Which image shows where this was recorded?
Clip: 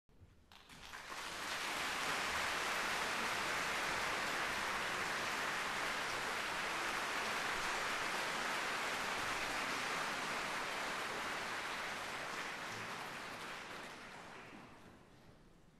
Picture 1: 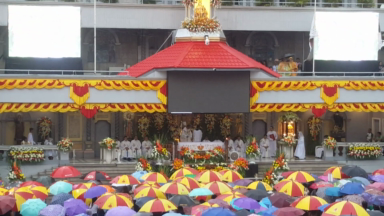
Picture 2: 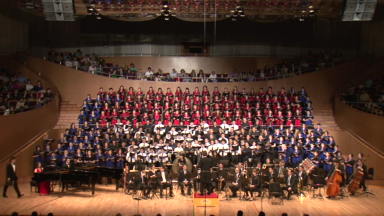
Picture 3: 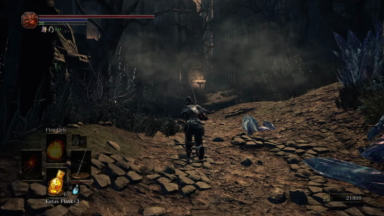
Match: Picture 2